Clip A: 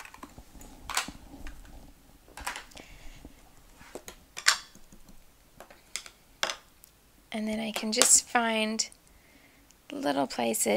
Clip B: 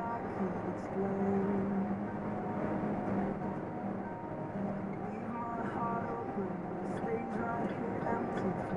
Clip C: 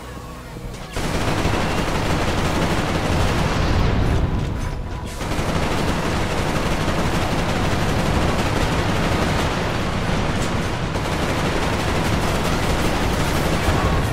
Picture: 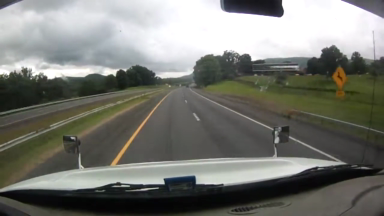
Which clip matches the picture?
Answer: B